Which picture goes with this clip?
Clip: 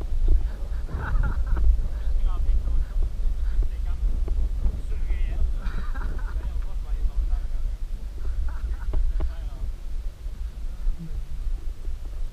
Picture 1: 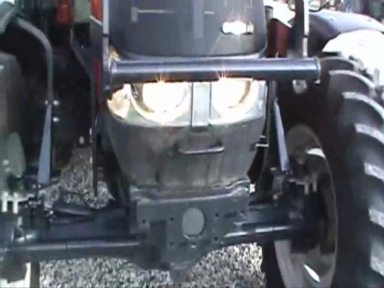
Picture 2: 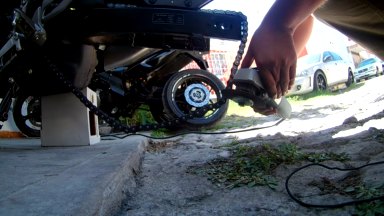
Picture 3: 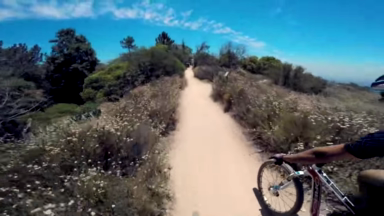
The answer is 3